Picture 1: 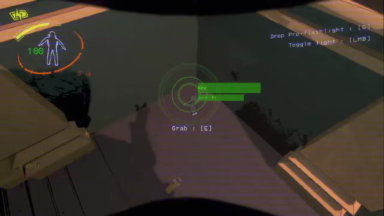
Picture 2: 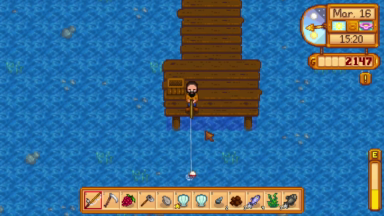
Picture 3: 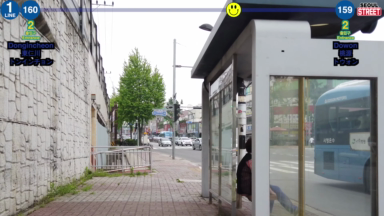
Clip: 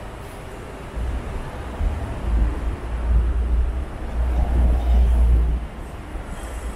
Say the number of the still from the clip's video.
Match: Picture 3